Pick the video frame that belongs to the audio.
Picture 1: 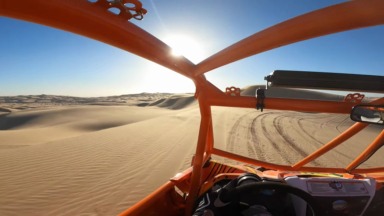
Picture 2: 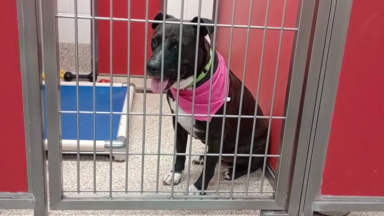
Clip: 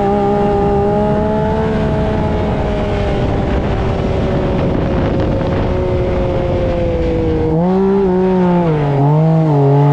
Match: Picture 1